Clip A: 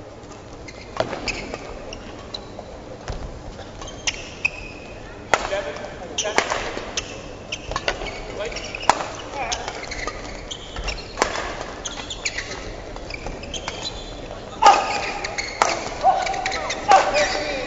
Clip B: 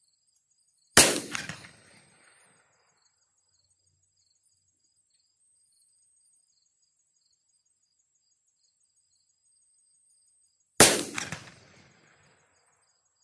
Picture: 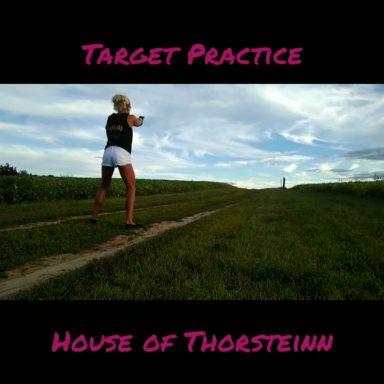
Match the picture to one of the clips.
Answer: B